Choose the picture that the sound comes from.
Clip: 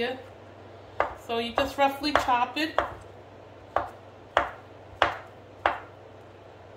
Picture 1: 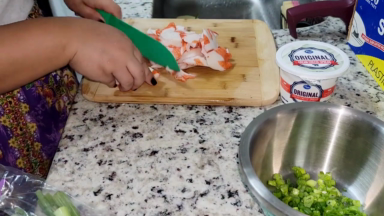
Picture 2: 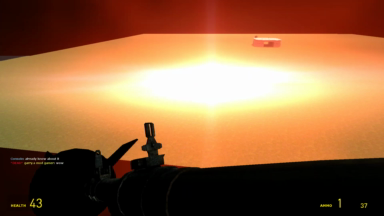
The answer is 1